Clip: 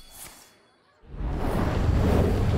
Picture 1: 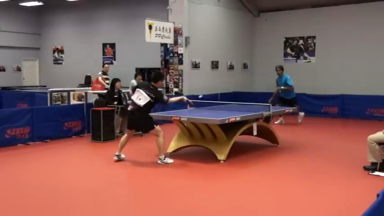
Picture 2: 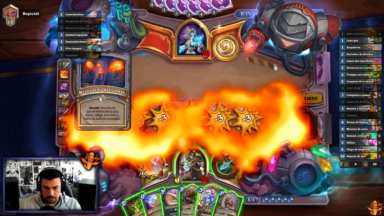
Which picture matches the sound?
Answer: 2